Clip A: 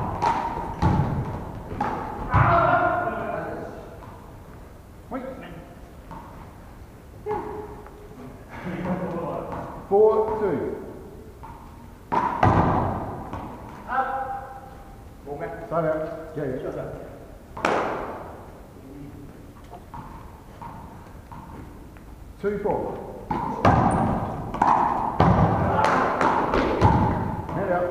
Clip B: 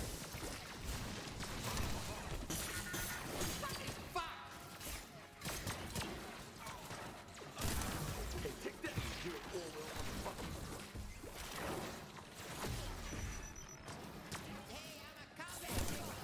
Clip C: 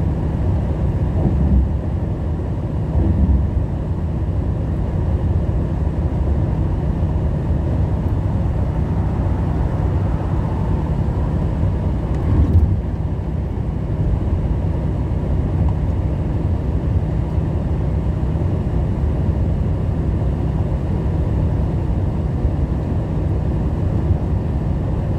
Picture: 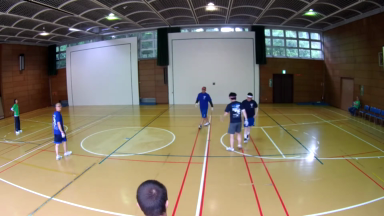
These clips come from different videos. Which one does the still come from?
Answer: A